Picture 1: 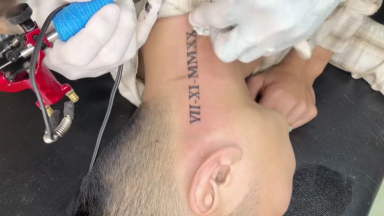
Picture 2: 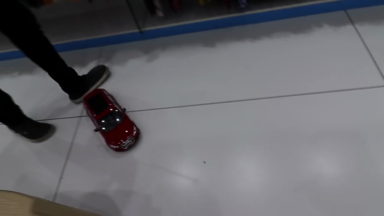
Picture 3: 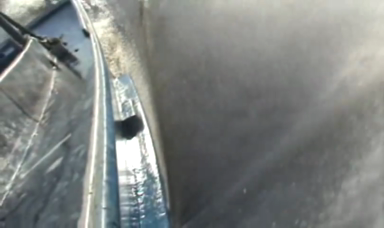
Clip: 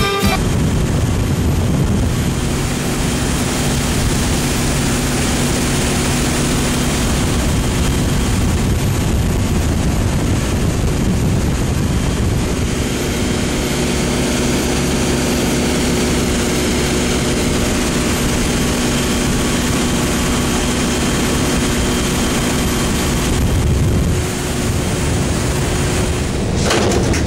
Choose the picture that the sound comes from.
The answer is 3